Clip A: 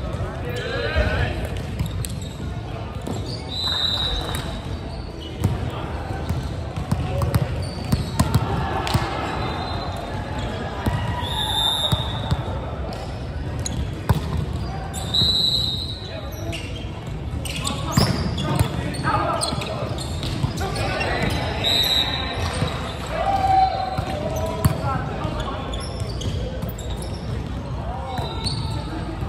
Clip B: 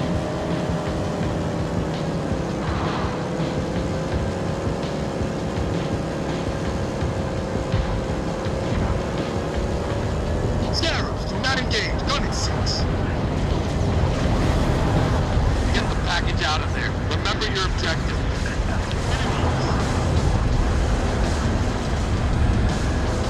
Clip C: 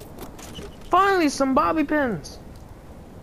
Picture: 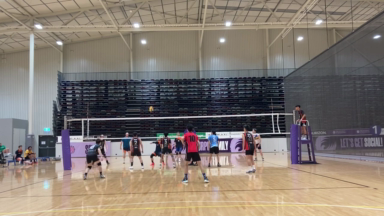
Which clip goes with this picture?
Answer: A